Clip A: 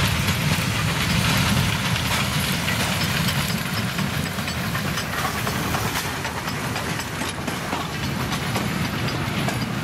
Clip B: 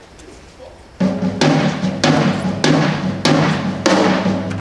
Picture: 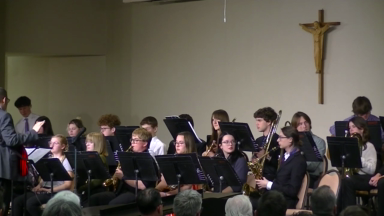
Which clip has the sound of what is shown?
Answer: B